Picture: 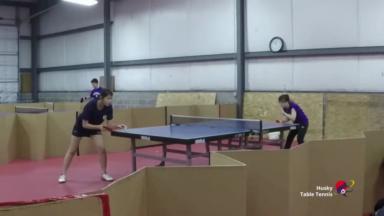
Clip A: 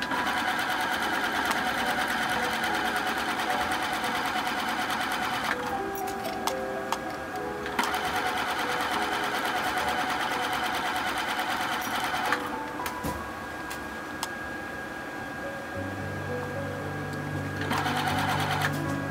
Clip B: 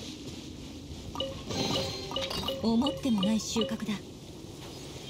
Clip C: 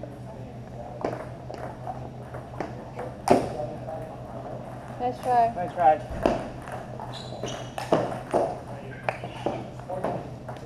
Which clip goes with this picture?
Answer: C